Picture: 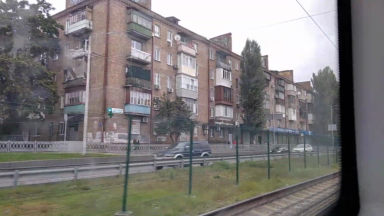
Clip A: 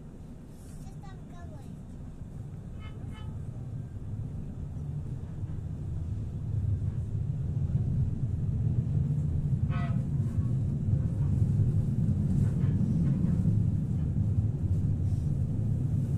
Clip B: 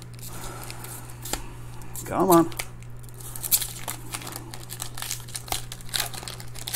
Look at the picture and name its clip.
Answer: A